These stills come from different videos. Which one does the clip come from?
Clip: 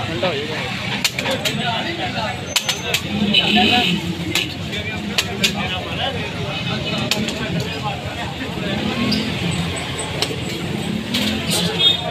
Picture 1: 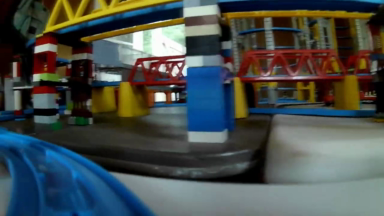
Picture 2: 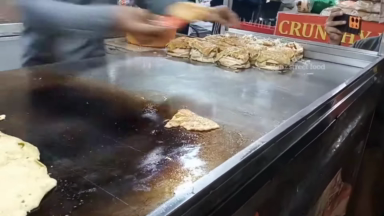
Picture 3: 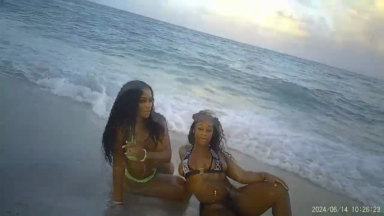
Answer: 2